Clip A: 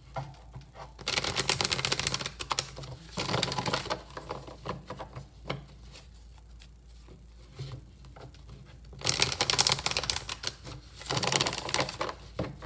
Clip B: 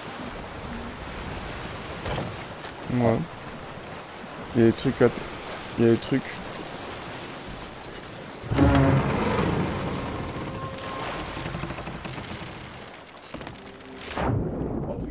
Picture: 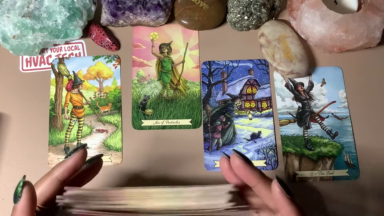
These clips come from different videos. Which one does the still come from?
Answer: A